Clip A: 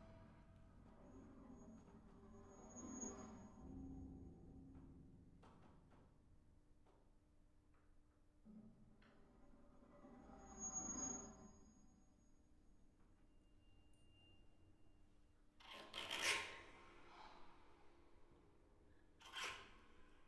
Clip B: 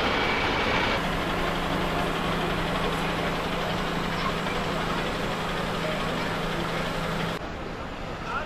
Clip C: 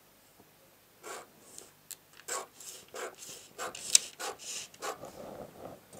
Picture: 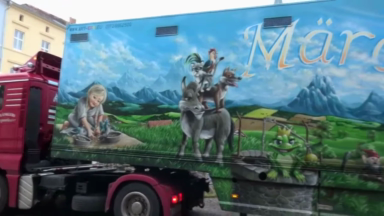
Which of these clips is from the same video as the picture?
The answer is B